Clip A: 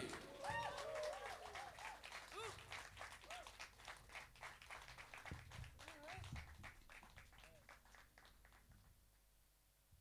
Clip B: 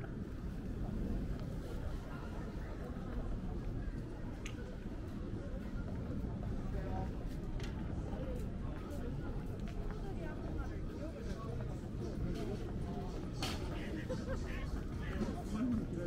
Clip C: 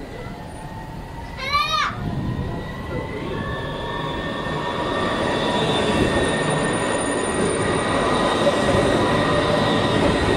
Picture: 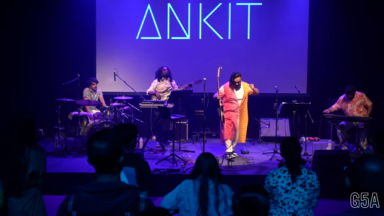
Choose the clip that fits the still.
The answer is A